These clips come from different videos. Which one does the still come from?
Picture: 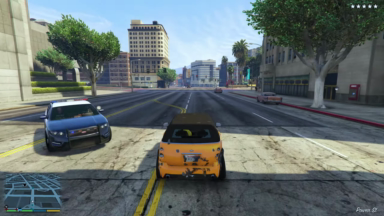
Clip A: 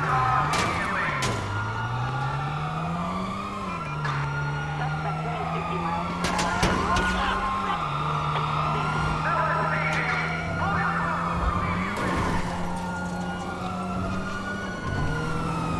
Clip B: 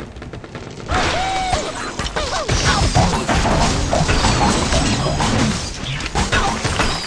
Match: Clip A